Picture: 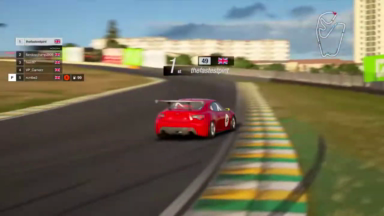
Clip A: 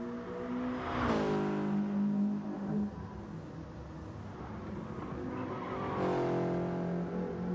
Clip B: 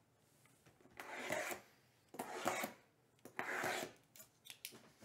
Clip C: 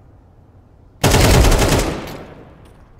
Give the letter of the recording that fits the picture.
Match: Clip A